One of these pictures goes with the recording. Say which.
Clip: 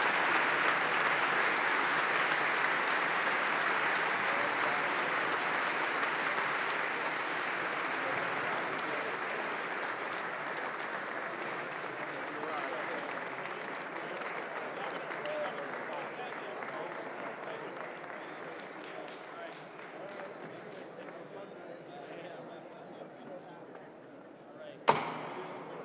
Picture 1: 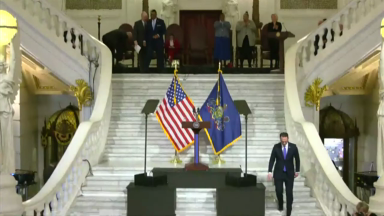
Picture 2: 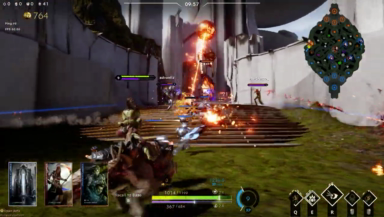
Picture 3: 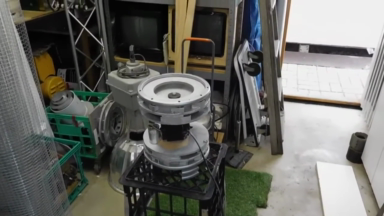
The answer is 1